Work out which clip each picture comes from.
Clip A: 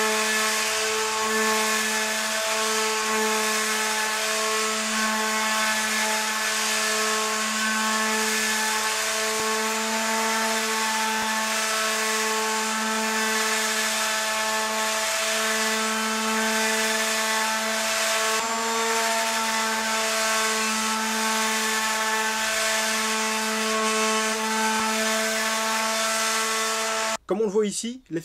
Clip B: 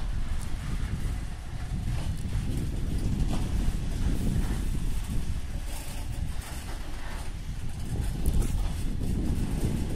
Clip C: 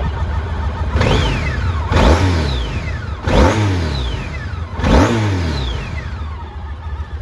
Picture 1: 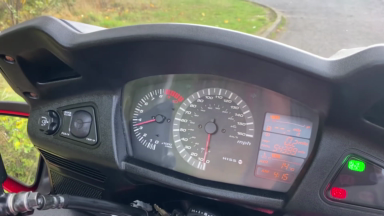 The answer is C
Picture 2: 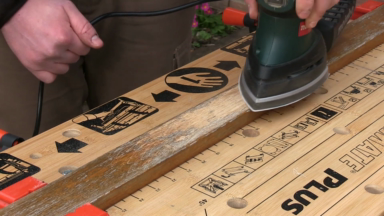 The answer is A